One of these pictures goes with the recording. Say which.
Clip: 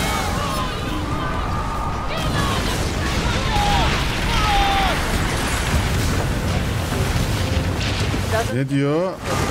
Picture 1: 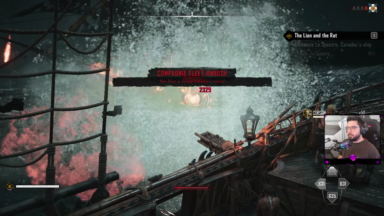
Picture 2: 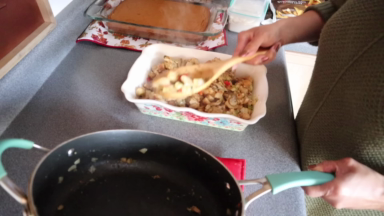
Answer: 1